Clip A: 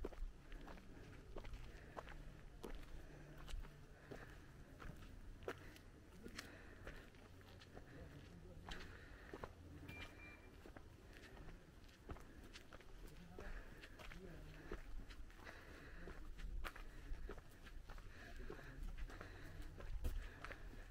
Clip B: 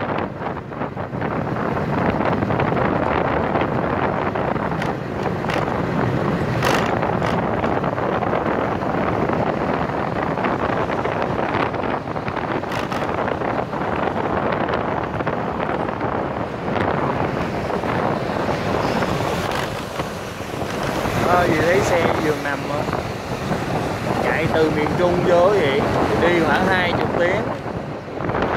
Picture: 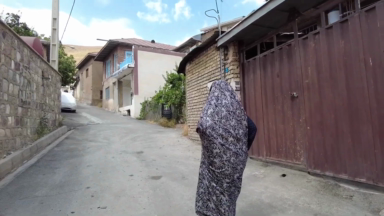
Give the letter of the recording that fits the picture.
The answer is A